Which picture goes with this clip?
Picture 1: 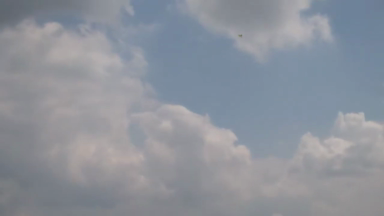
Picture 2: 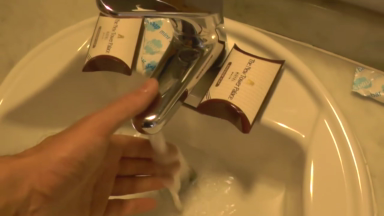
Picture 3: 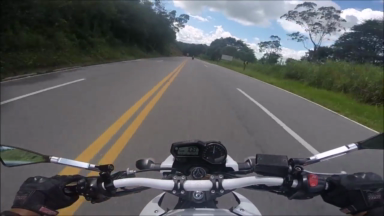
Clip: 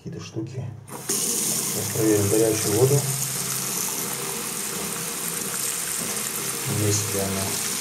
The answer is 2